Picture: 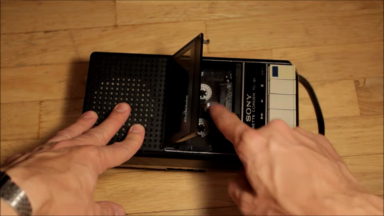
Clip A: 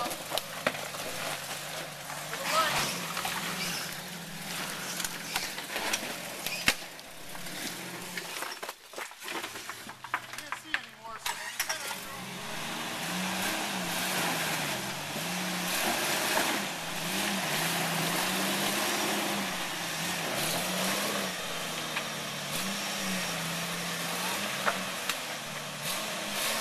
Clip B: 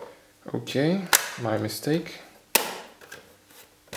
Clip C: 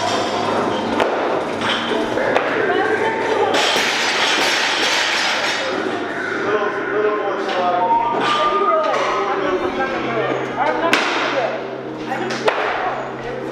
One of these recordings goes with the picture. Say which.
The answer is B